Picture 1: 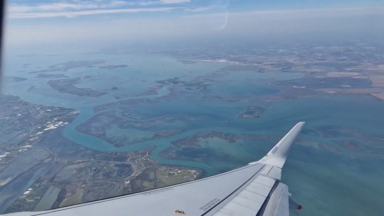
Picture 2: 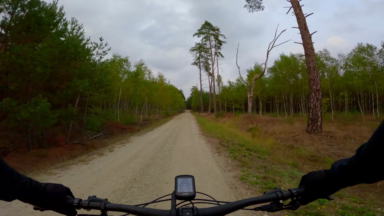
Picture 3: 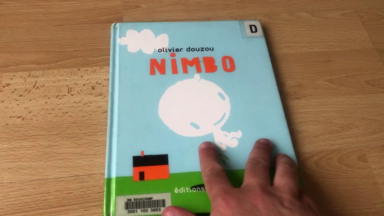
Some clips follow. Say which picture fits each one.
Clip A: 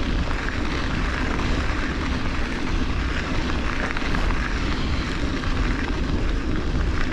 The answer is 2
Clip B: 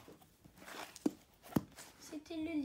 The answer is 3